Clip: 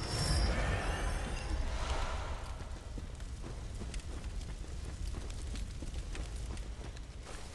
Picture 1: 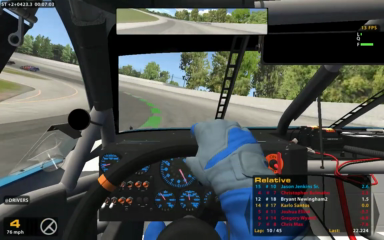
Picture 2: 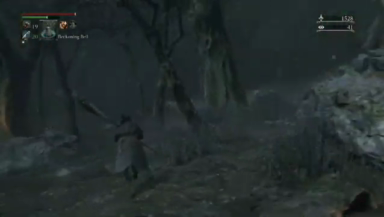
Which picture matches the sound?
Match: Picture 2